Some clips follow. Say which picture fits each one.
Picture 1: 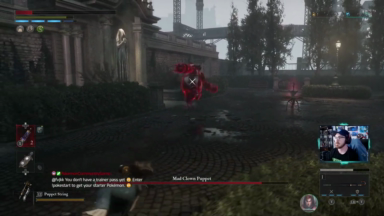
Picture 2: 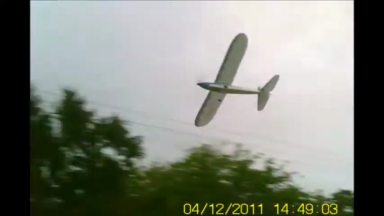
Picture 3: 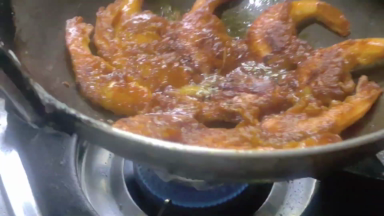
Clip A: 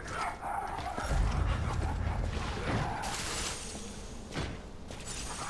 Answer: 1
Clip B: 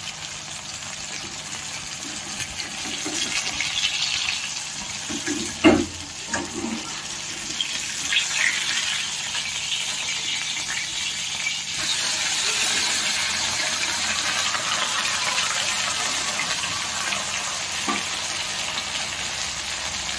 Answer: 3